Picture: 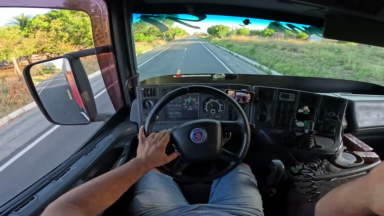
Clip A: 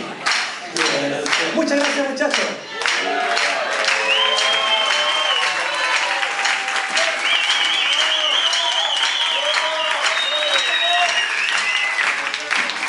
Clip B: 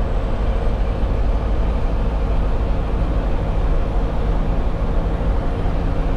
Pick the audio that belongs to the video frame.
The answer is B